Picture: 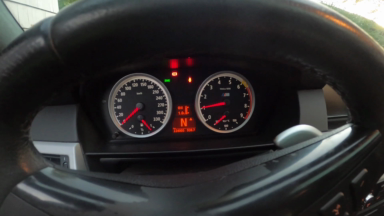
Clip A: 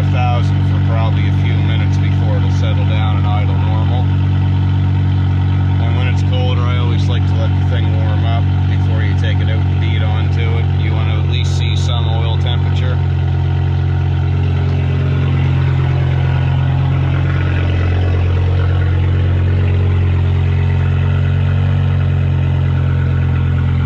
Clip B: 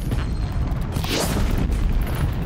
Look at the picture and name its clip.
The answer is A